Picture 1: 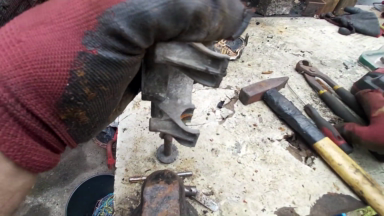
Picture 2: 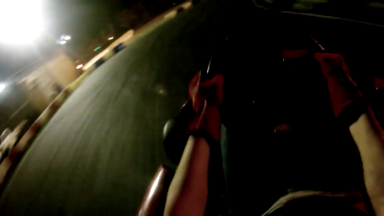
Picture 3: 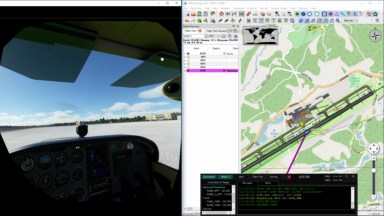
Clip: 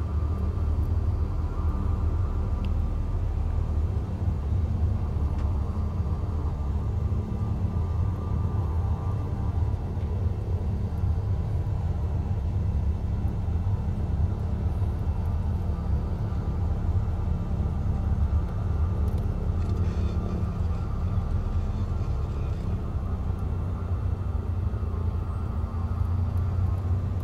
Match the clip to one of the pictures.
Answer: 3